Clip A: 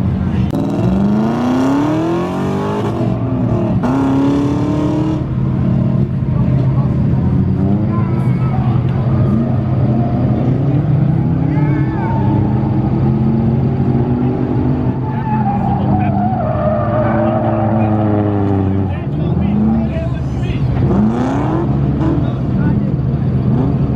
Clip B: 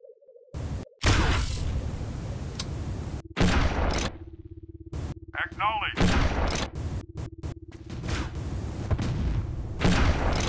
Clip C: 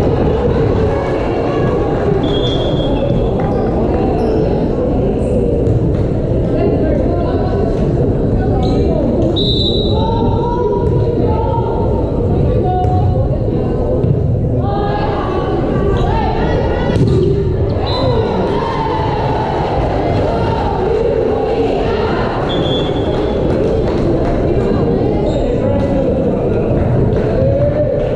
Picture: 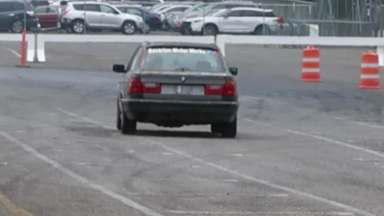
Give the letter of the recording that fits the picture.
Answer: A